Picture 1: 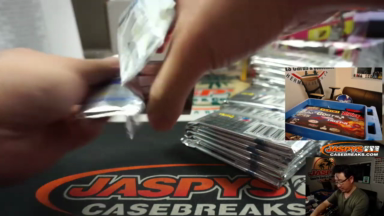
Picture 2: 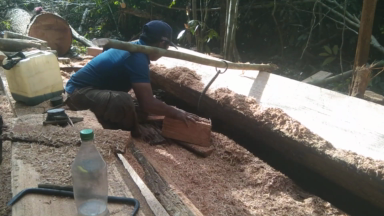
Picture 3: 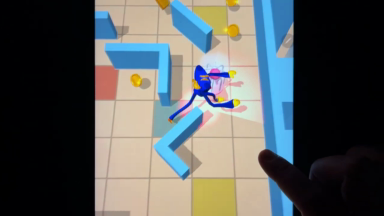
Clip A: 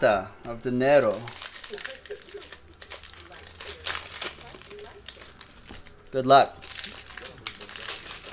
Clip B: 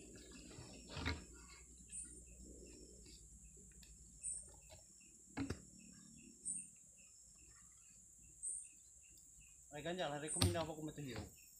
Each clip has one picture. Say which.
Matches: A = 1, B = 2